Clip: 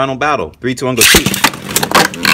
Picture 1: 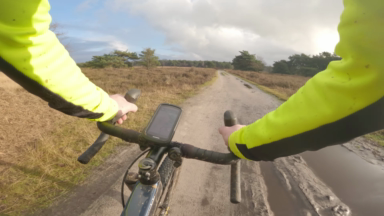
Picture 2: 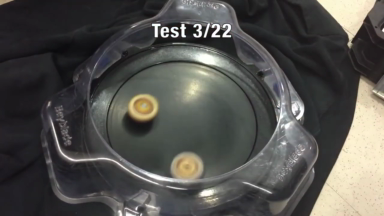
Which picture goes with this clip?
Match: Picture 2